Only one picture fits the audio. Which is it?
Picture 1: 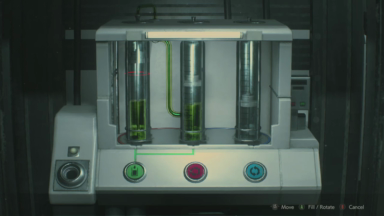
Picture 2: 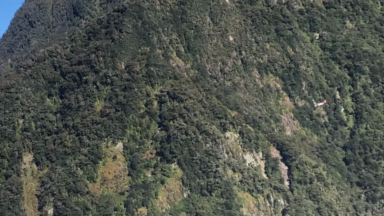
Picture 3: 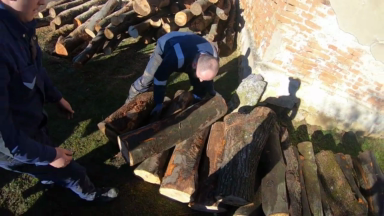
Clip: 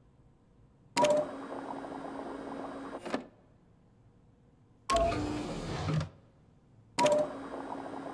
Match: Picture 1